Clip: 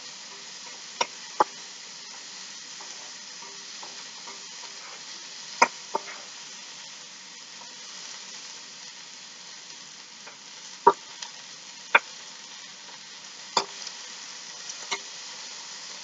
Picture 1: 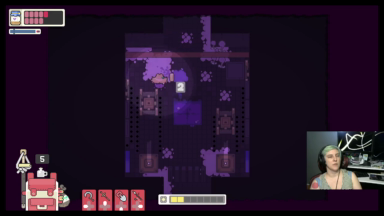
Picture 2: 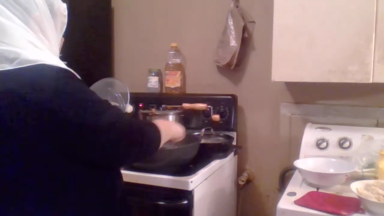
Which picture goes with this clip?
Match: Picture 2